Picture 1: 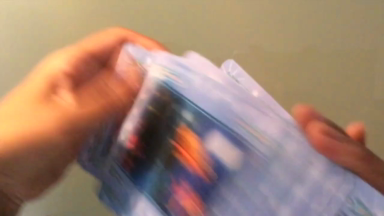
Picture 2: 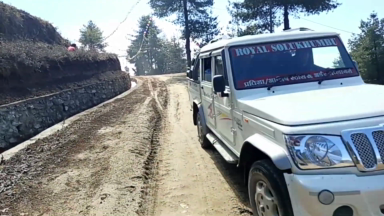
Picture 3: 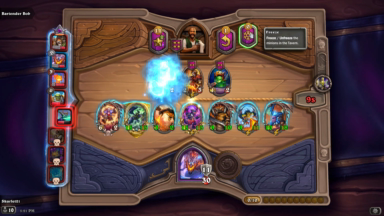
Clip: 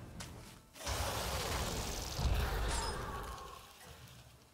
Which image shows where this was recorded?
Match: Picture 3